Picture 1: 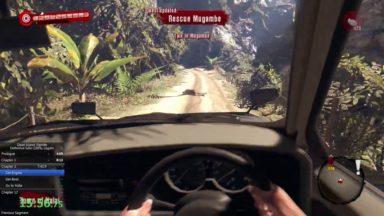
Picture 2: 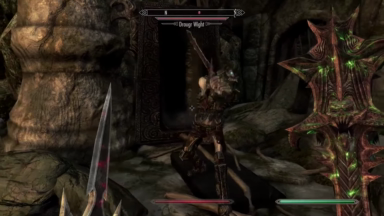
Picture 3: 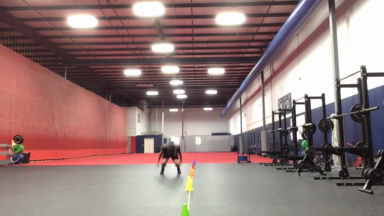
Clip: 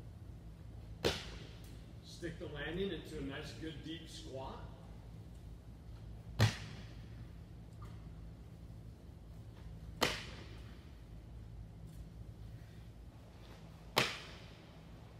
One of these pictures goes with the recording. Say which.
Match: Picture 3